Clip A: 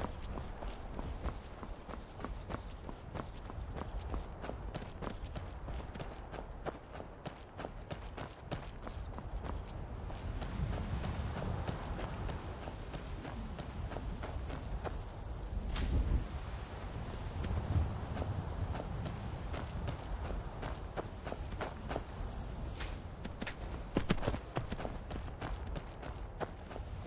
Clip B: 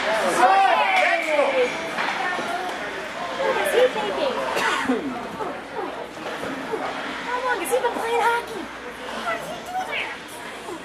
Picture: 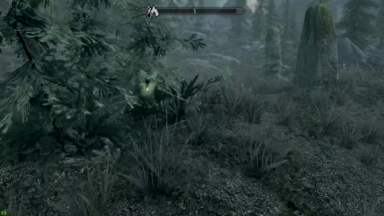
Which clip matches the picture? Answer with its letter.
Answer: A